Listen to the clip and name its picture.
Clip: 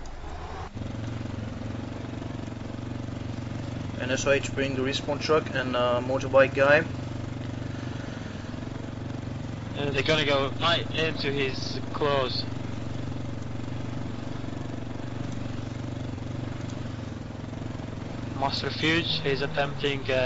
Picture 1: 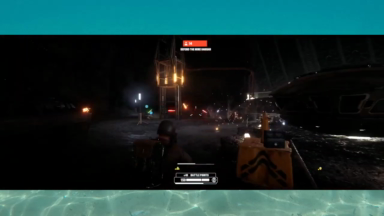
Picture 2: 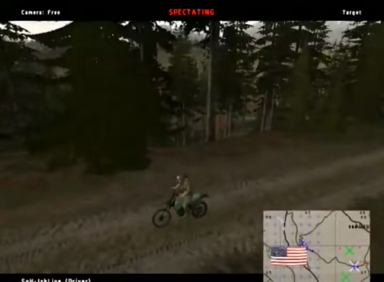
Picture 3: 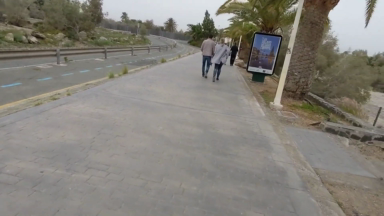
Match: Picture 2